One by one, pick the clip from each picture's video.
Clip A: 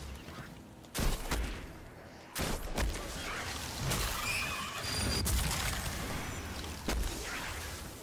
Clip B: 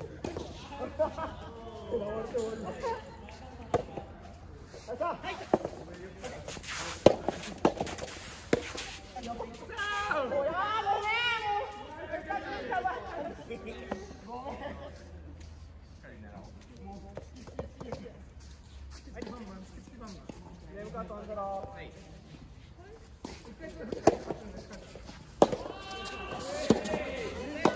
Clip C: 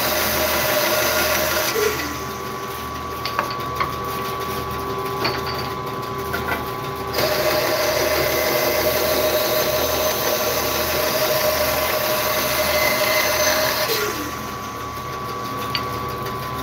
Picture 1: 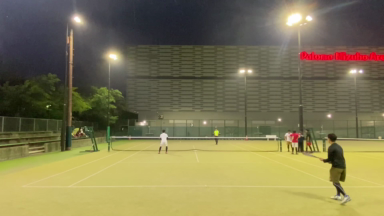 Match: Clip B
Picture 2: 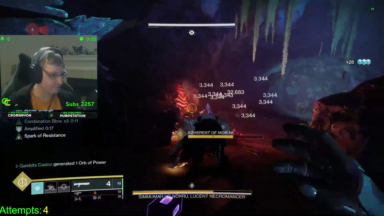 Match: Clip A